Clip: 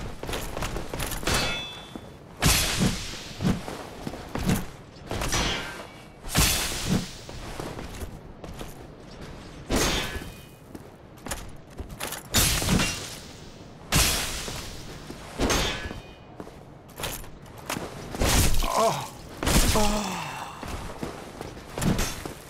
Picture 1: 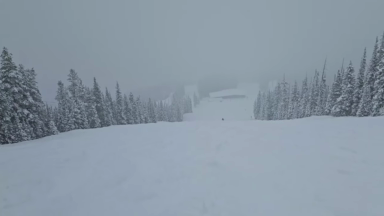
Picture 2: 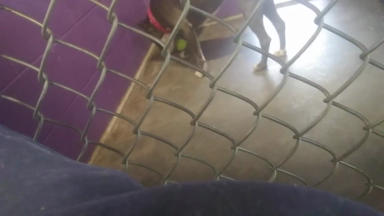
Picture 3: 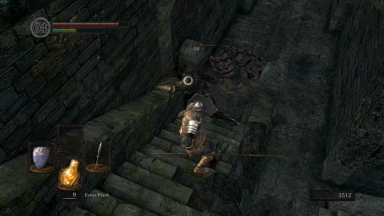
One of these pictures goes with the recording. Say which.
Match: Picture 3